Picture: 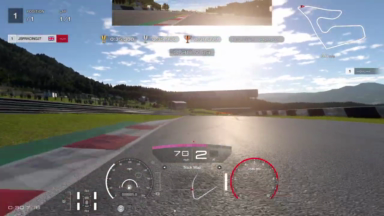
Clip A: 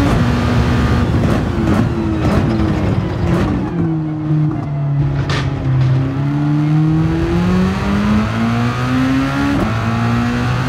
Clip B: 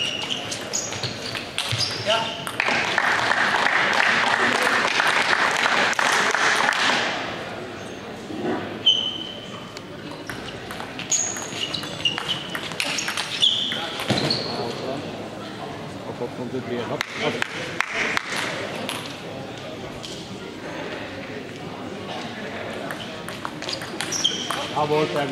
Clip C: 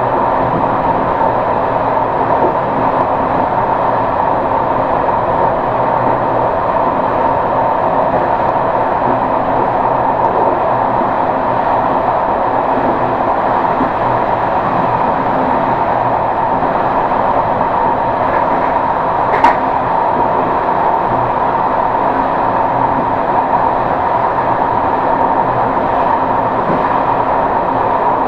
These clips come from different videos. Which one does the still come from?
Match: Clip A